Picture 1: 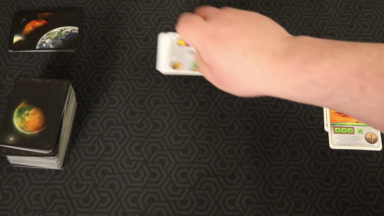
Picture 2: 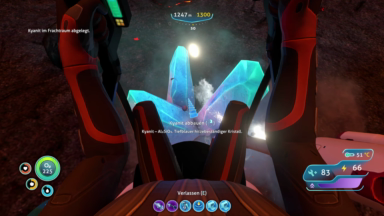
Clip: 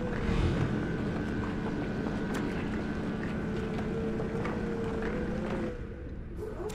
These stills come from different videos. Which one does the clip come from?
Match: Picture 2